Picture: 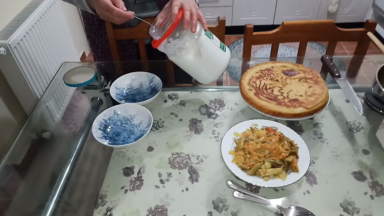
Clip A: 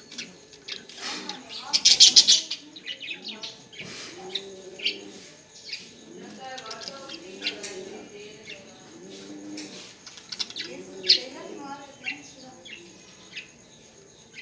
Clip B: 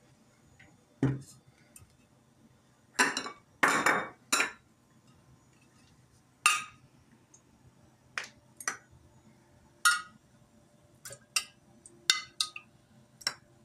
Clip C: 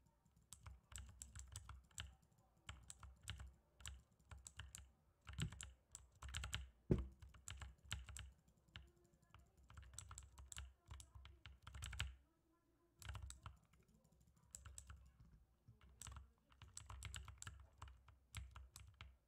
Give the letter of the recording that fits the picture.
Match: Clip B